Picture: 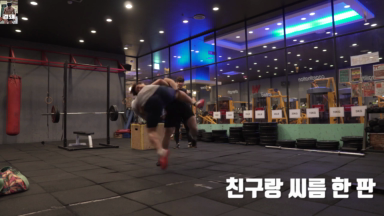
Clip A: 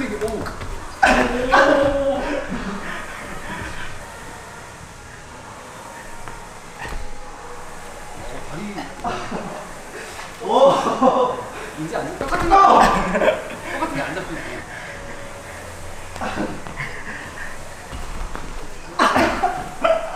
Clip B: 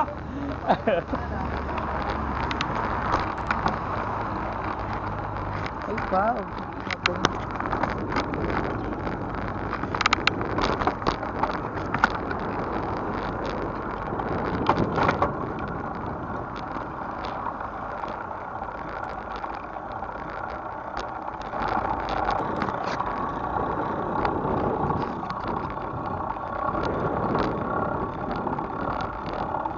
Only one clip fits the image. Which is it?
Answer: A